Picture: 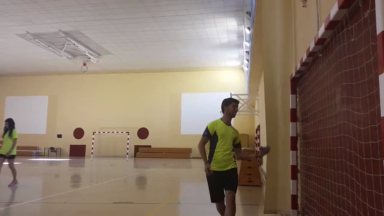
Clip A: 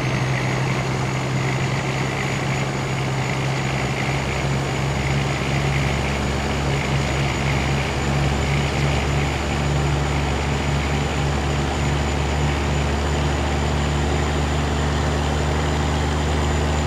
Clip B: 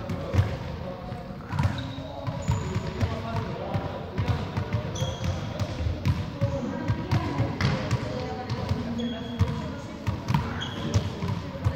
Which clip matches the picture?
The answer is B